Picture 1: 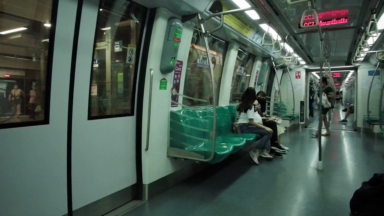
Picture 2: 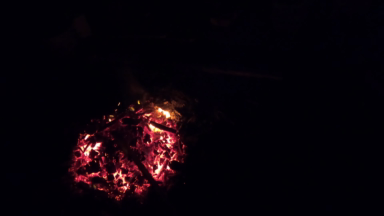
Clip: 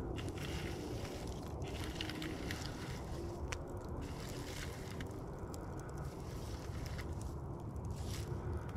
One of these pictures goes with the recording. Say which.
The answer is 2